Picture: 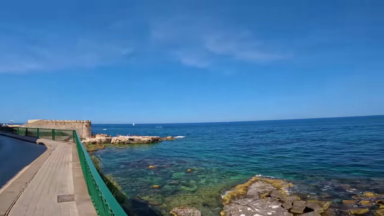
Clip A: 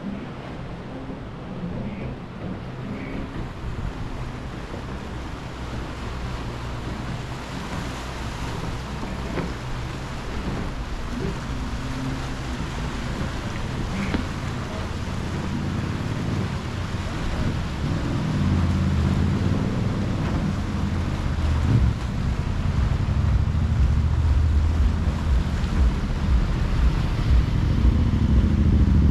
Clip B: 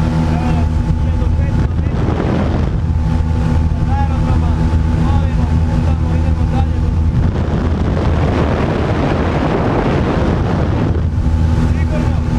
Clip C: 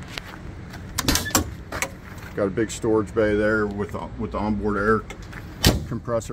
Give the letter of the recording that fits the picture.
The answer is A